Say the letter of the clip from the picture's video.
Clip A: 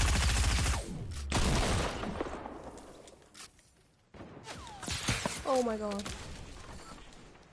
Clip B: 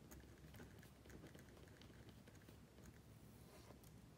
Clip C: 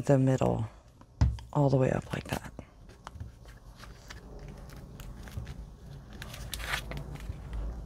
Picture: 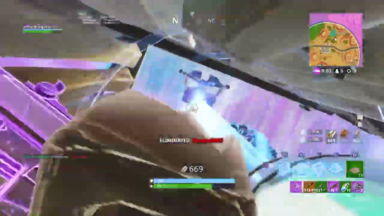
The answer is A